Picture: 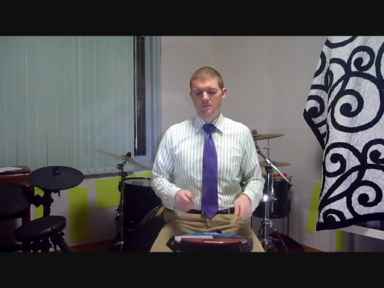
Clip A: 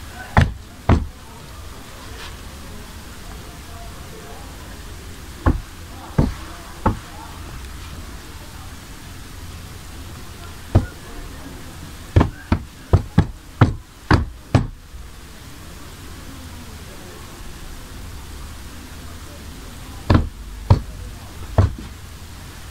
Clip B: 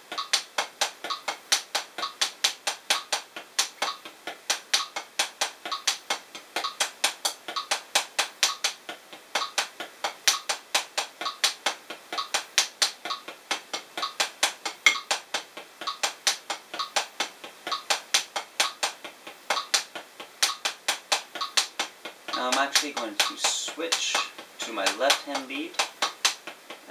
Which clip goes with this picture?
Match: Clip B